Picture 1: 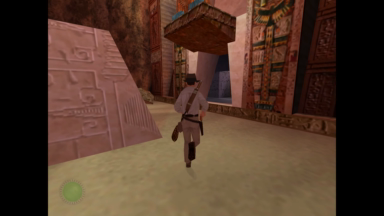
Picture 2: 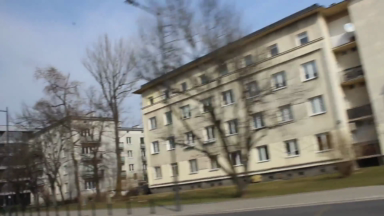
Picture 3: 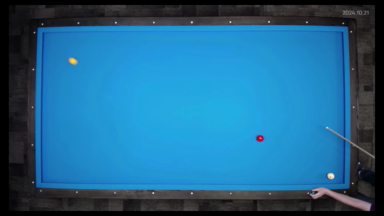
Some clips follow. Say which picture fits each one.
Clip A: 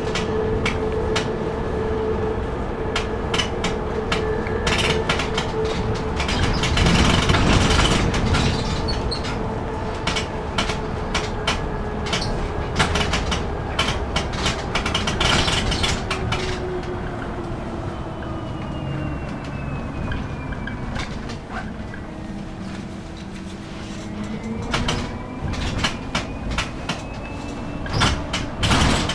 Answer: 2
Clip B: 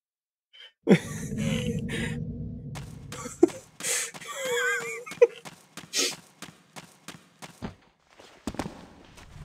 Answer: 1